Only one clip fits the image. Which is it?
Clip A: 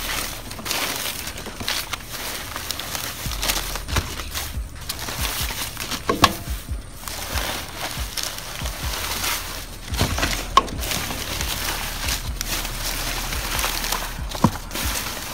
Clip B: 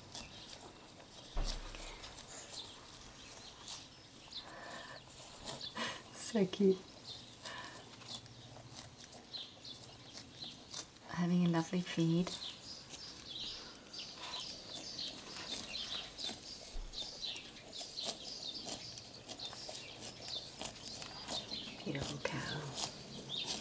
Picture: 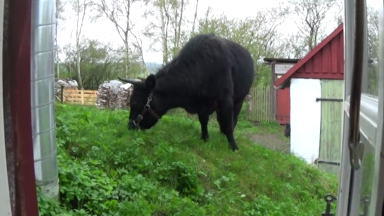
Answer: B